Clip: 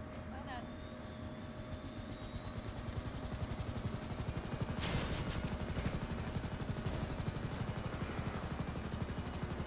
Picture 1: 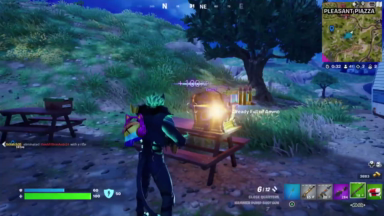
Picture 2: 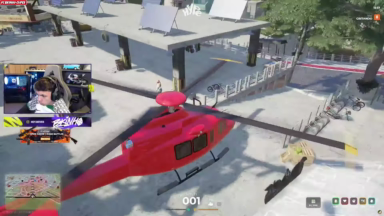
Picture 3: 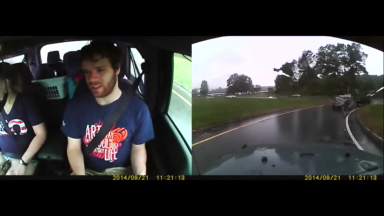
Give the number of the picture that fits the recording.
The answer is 2